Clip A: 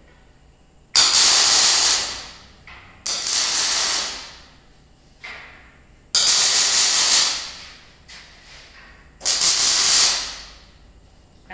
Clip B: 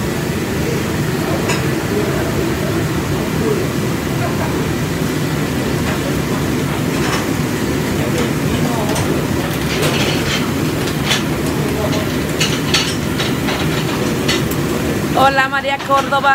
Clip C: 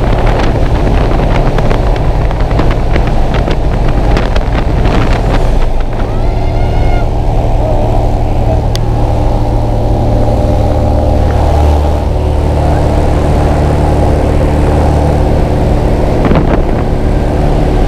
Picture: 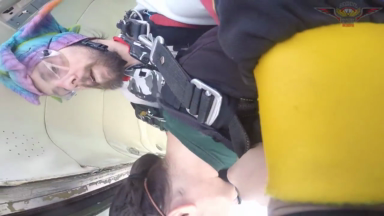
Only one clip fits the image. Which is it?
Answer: C